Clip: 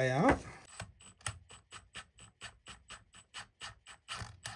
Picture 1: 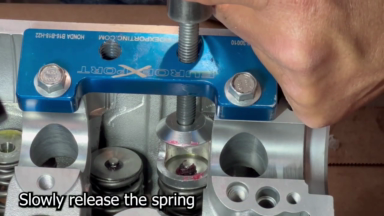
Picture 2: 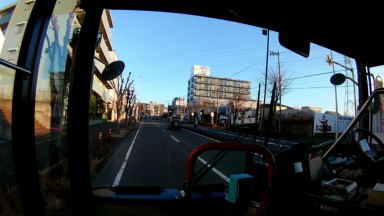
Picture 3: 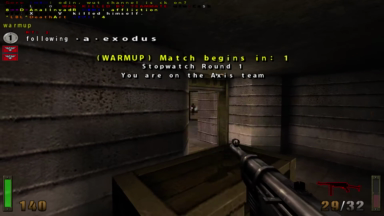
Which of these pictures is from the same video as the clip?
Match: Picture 1